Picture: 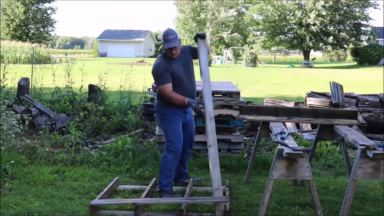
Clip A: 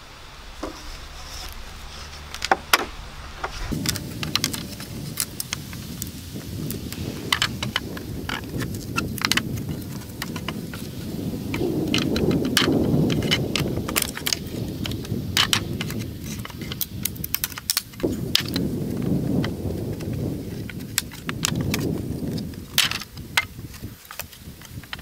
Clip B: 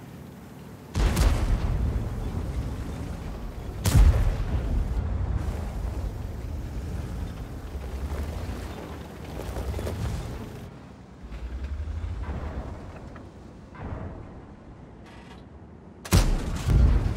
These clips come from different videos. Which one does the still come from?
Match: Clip A